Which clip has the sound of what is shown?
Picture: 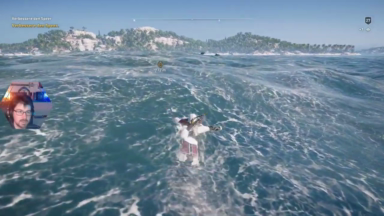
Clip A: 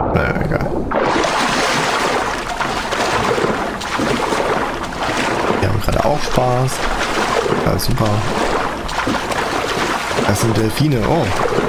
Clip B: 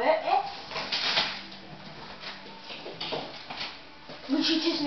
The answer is A